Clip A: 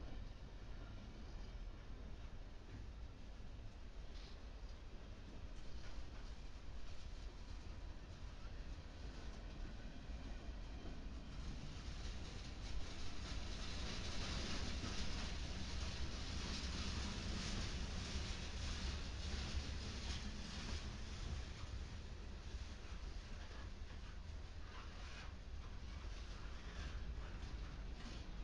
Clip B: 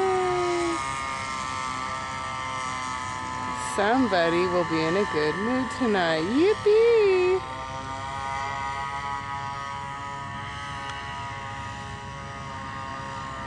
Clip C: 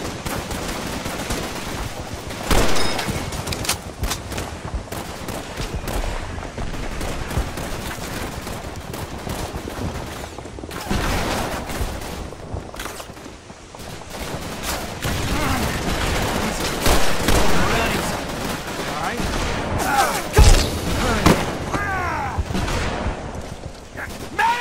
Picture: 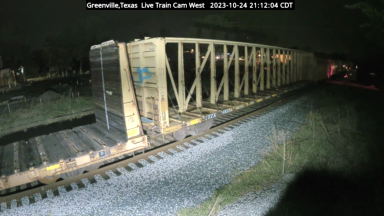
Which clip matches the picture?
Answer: A